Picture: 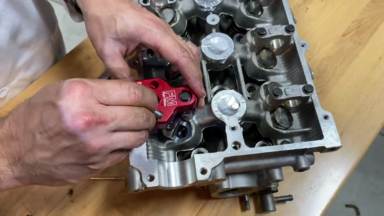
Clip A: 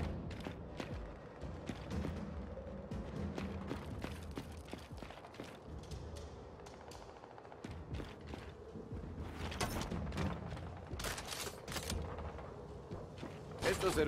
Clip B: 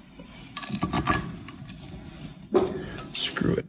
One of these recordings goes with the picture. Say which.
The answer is B